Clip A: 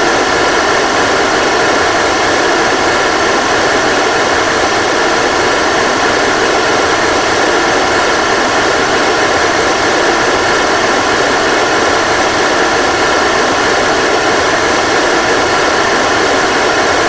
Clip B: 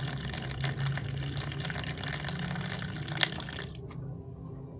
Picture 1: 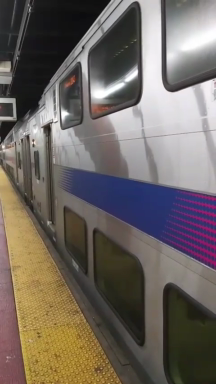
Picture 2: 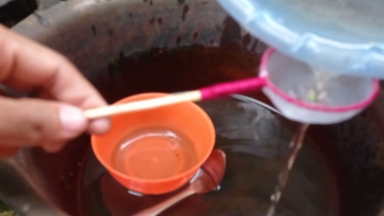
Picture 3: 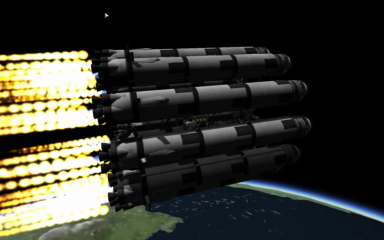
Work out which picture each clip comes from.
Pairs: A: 3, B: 2